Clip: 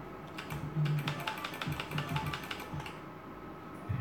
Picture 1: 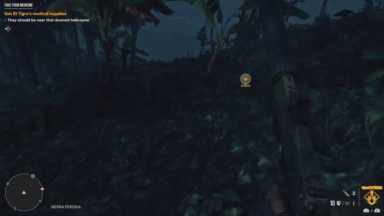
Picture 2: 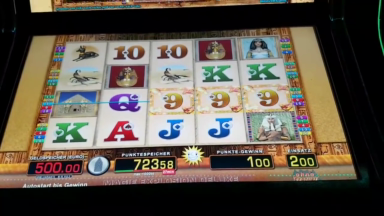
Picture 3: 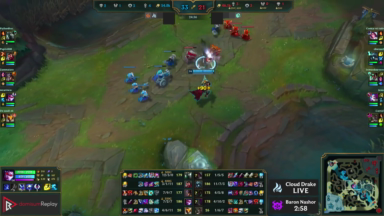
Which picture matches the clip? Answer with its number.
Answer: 2